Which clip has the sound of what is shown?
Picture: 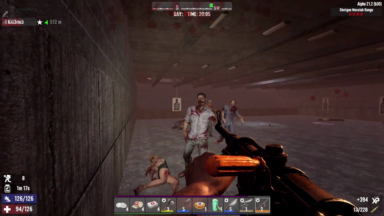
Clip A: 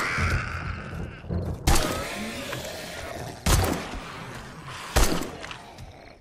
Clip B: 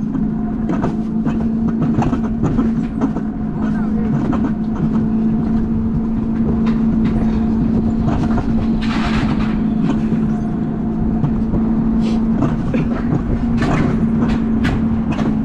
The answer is A